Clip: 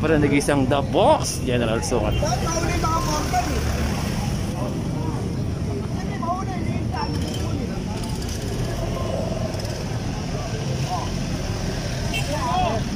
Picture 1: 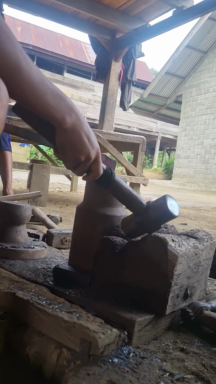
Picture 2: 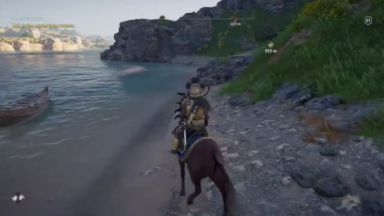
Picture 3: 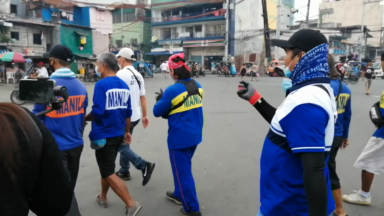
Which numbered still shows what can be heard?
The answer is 3